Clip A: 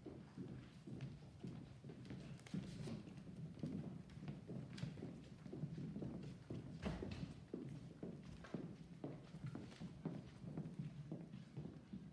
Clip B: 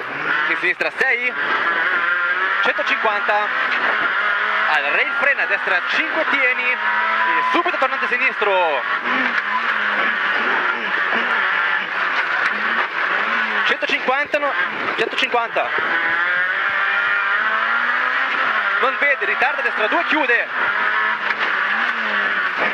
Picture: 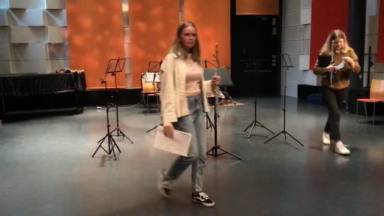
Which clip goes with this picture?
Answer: A